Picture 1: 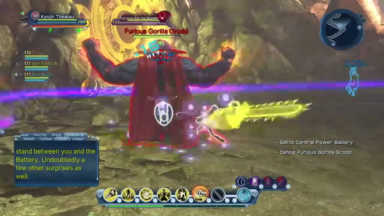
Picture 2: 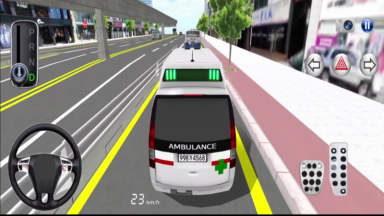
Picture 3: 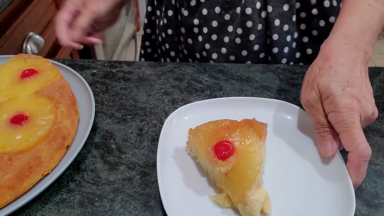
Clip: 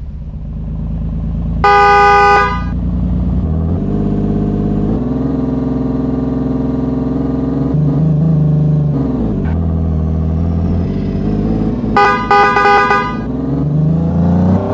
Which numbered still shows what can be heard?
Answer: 2